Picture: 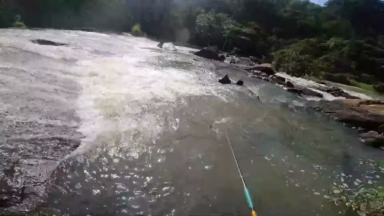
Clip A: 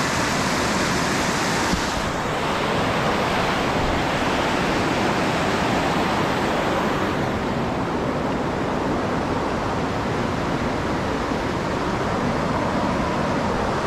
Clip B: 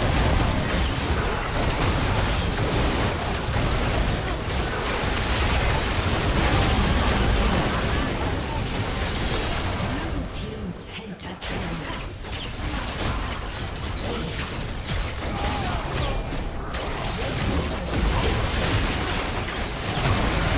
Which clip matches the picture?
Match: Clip A